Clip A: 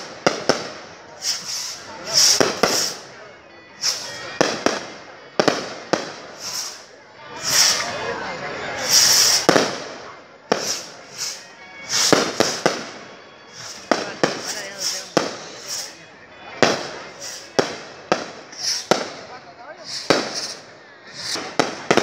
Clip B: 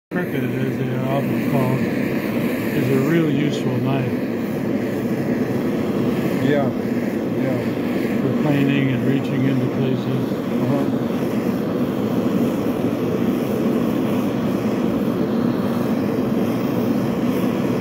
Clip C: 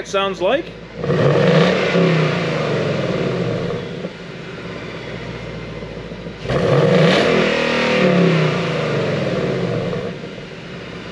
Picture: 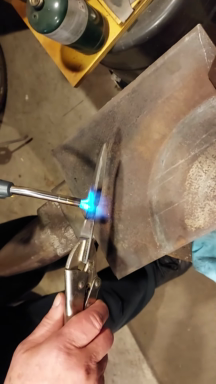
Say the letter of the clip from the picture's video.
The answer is B